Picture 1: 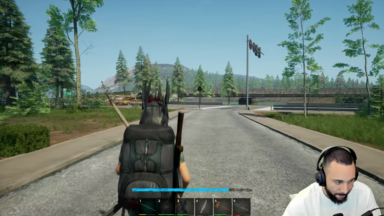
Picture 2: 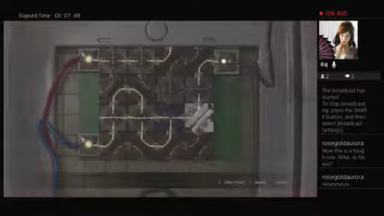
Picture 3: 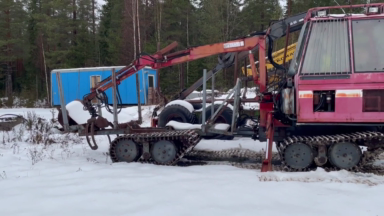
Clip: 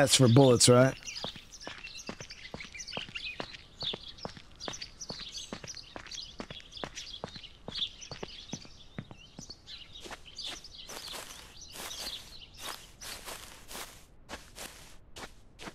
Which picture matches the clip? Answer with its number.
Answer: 1